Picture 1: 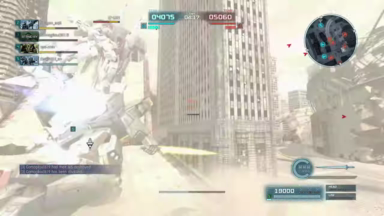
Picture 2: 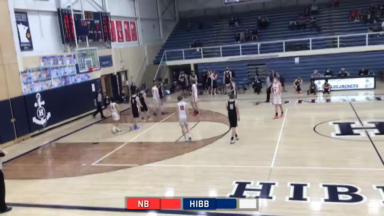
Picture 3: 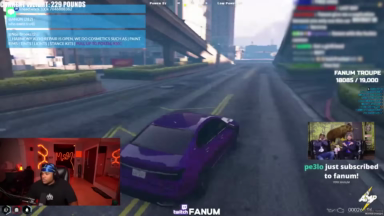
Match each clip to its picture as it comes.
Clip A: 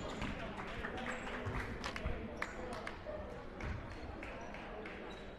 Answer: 2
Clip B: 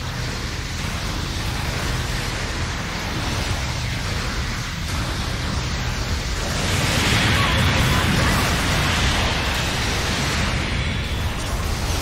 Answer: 1